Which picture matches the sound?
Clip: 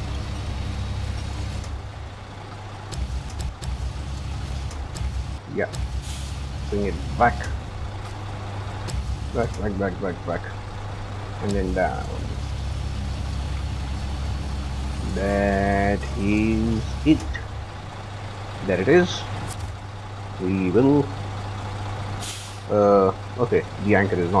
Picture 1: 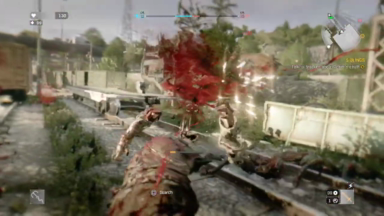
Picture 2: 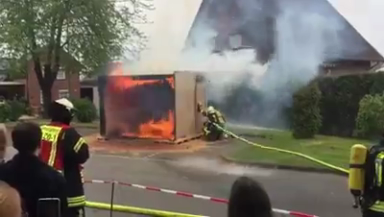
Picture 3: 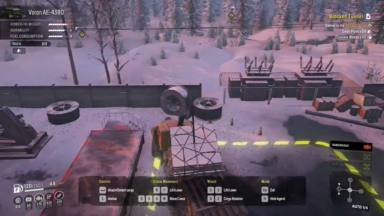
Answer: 3